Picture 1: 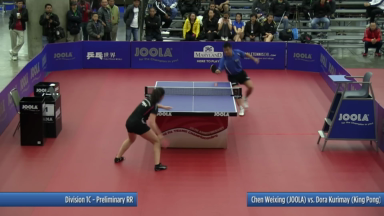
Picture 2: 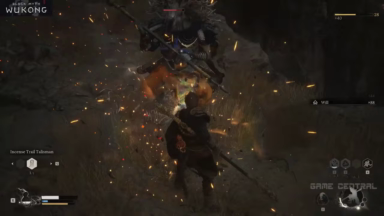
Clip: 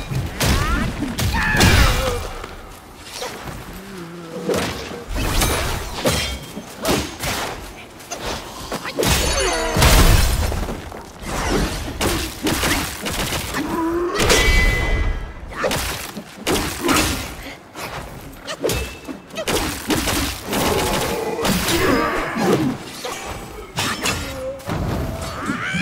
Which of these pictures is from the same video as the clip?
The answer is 2